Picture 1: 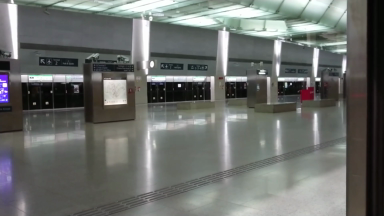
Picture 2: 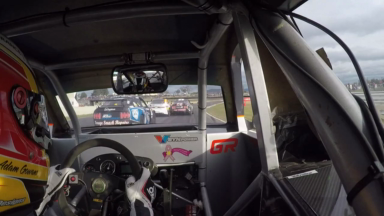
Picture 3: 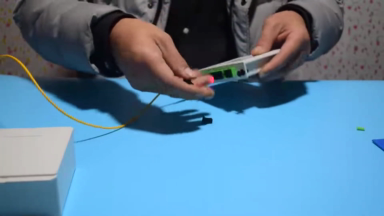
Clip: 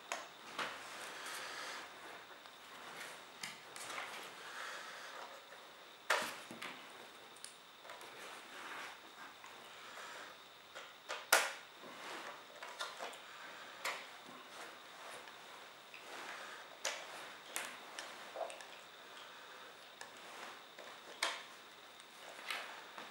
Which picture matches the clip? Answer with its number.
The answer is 3